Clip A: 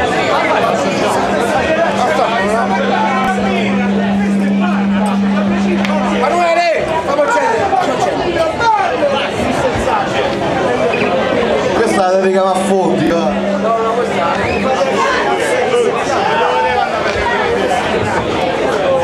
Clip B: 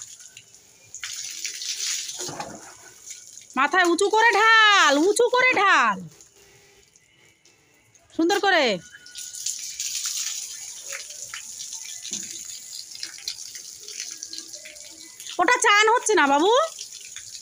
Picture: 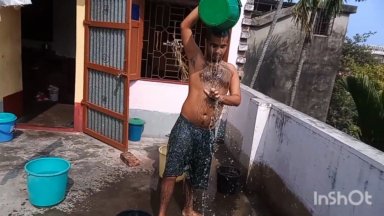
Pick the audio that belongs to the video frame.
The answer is B